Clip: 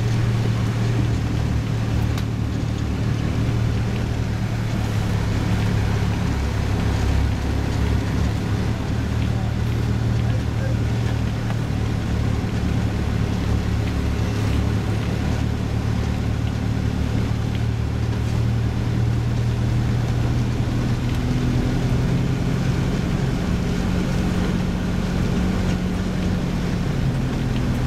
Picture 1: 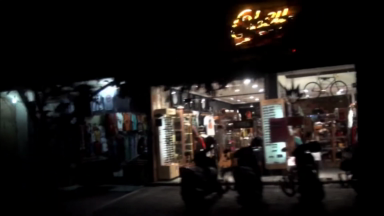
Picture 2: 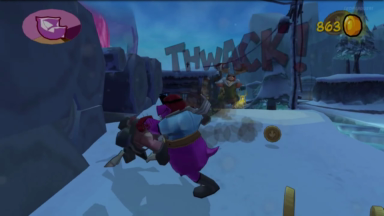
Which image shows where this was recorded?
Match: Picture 1